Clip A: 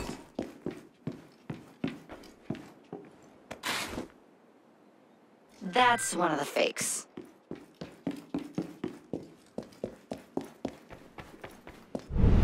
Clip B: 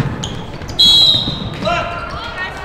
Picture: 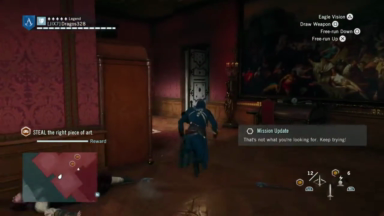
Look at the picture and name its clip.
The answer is A